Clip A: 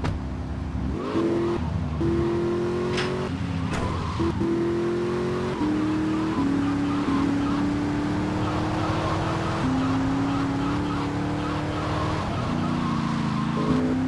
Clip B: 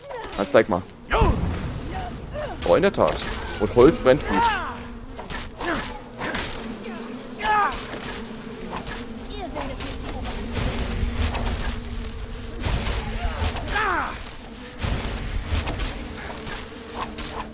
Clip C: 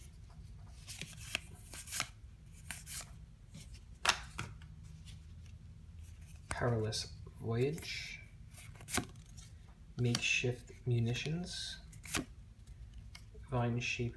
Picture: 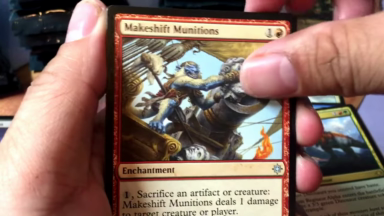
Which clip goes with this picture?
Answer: C